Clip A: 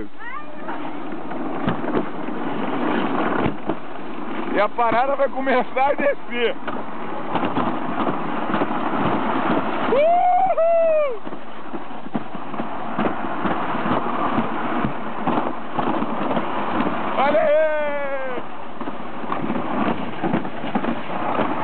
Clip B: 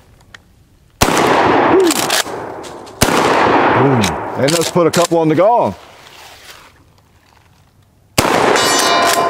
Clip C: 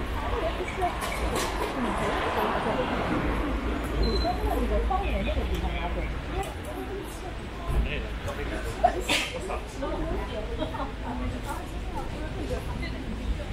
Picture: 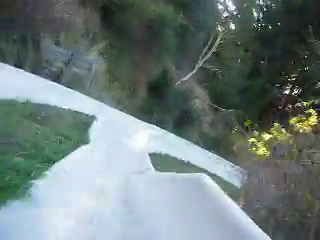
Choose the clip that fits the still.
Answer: A